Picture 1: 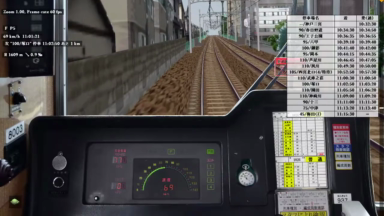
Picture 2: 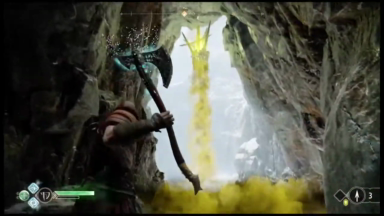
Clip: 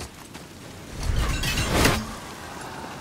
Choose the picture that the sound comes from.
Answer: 2